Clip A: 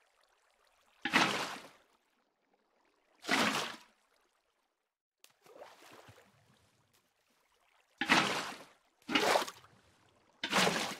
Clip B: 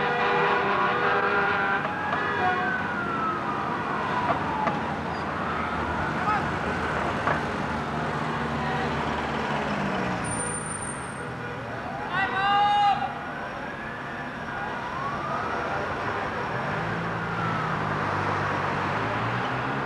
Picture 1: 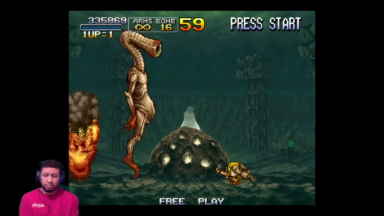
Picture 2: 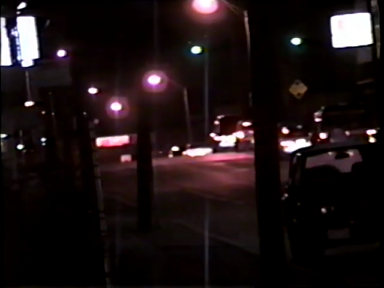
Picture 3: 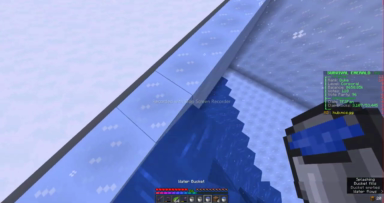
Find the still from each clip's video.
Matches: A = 3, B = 2